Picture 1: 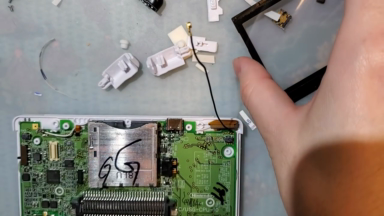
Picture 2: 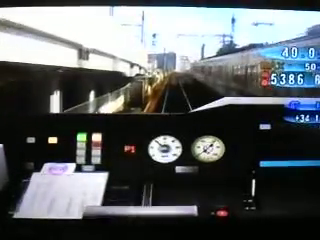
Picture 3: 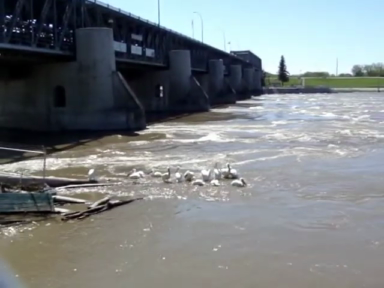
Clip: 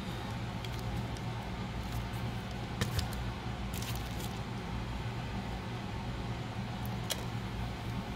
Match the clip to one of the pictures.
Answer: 1